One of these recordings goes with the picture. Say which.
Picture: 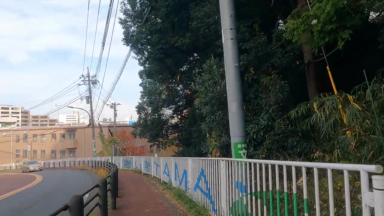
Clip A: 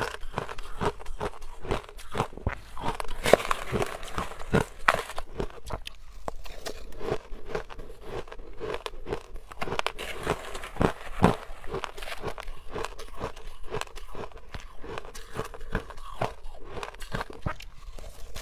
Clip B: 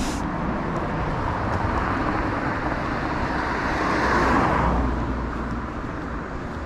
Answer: B